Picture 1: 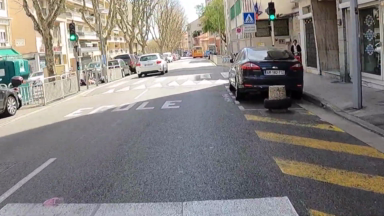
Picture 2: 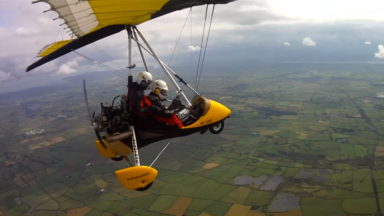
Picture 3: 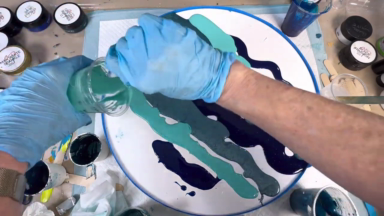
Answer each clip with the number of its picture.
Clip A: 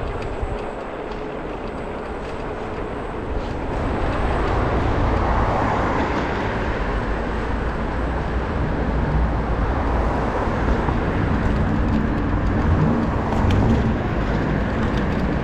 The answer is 1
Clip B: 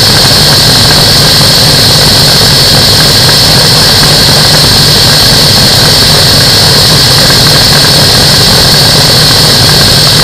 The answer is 2